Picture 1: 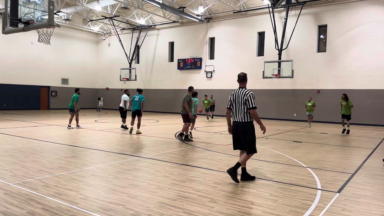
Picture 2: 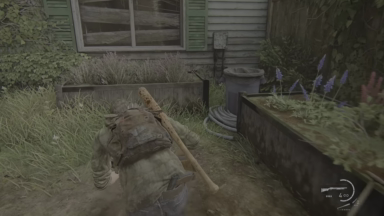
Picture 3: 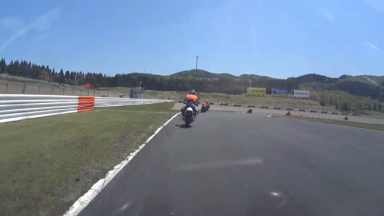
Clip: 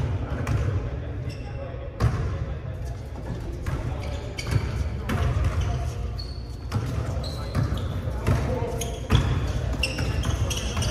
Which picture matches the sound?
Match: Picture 1